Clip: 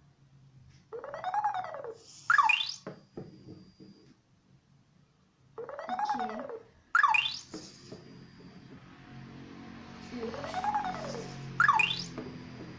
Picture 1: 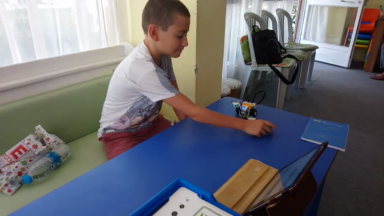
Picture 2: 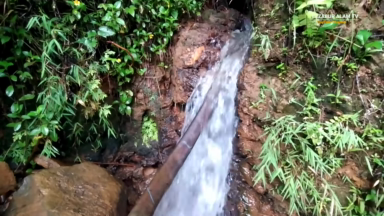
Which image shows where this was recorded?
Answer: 1